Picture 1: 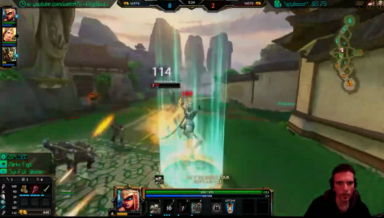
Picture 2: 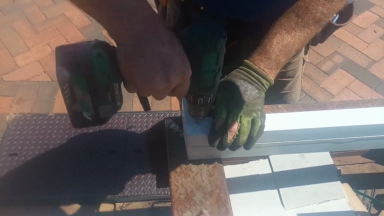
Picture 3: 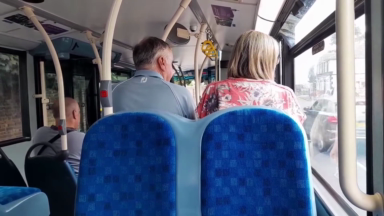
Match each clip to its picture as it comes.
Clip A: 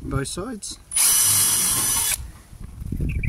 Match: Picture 2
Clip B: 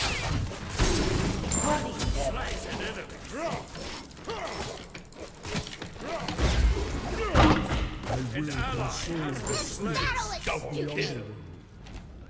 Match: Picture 1